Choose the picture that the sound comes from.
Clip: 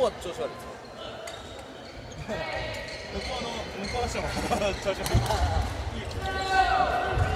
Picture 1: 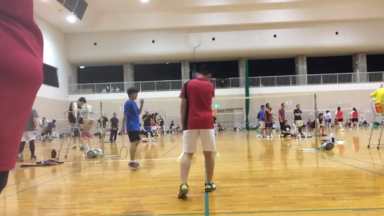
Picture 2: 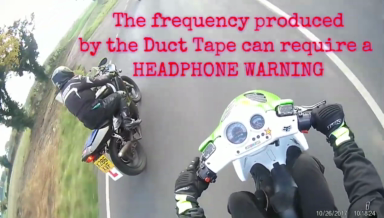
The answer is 1